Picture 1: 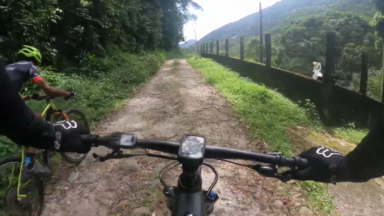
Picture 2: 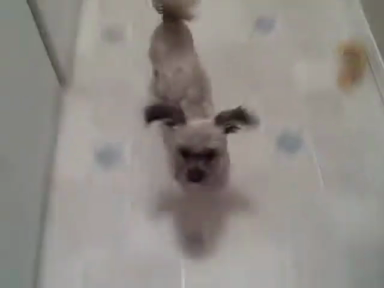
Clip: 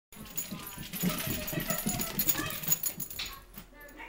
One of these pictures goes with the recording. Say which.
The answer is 2